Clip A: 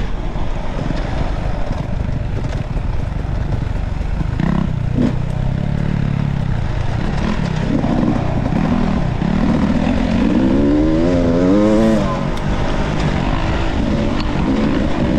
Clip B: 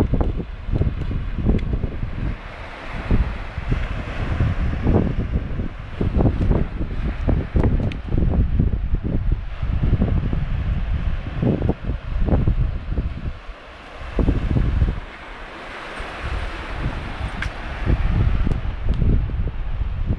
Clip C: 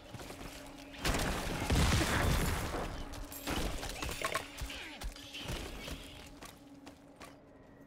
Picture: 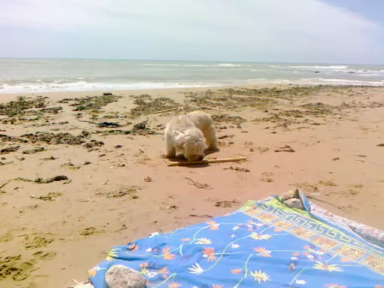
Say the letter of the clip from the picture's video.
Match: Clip B